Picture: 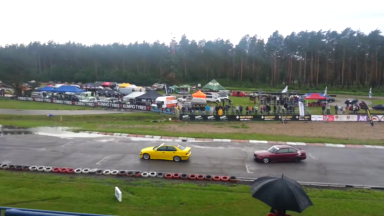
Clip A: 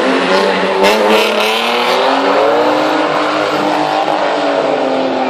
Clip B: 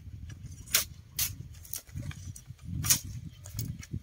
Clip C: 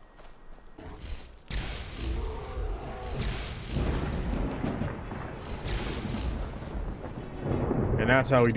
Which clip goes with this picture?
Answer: A